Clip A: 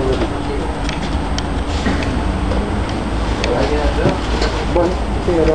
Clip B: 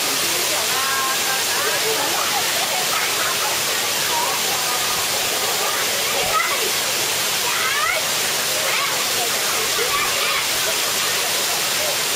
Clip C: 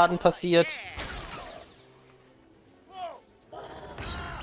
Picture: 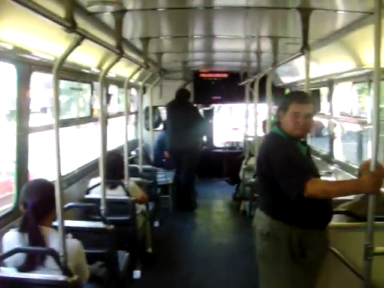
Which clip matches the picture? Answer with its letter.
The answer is A